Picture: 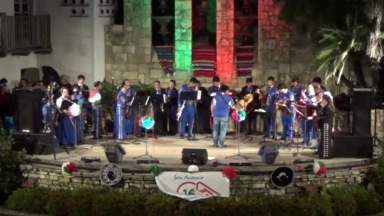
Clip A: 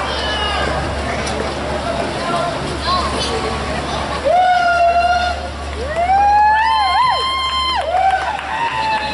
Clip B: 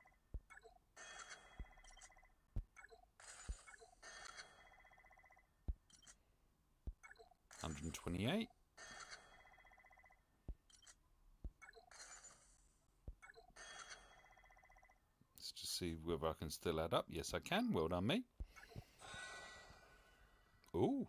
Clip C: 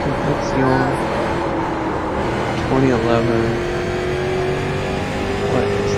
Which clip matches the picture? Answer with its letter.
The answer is A